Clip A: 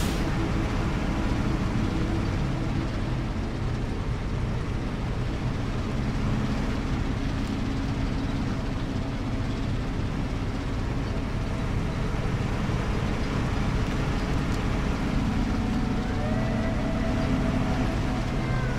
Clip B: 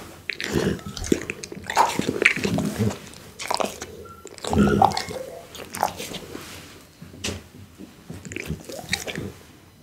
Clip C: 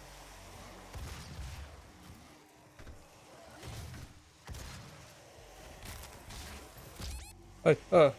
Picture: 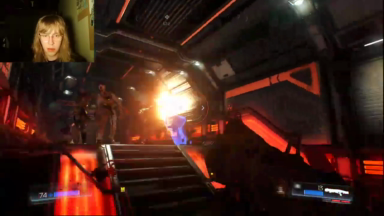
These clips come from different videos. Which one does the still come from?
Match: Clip C